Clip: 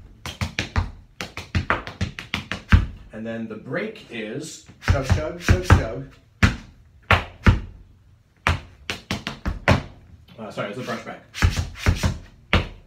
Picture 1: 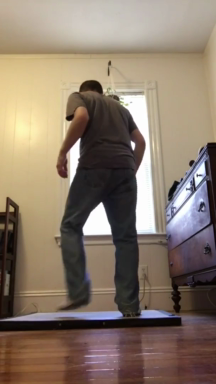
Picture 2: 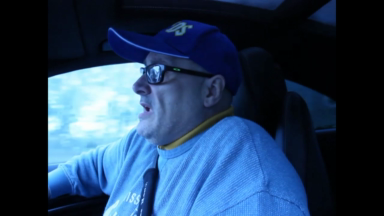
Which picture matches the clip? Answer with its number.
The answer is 1